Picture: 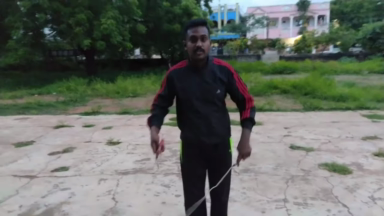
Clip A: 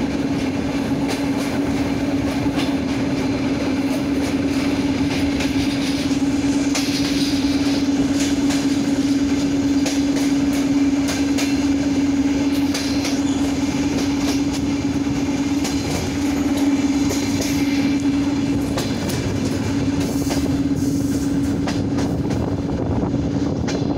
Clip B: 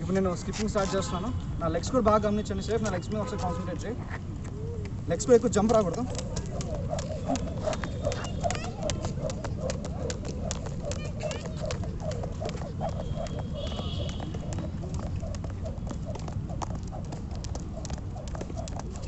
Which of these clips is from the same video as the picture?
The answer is B